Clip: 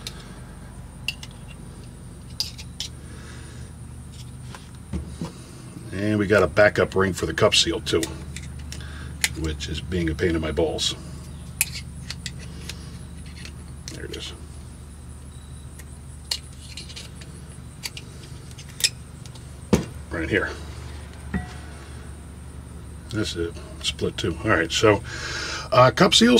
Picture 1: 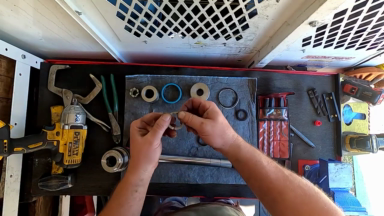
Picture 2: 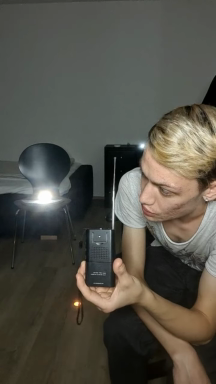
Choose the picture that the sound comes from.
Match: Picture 1